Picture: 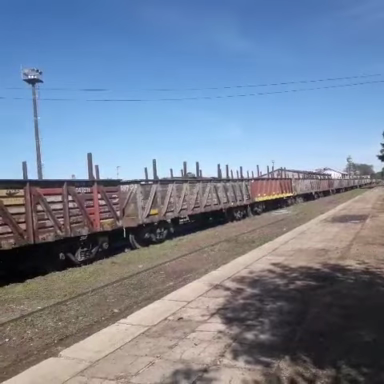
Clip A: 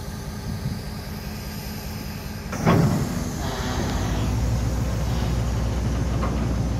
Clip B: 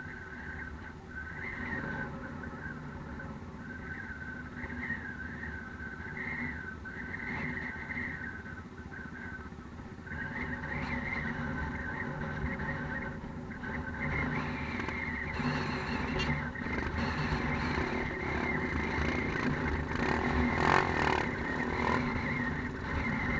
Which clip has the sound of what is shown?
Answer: A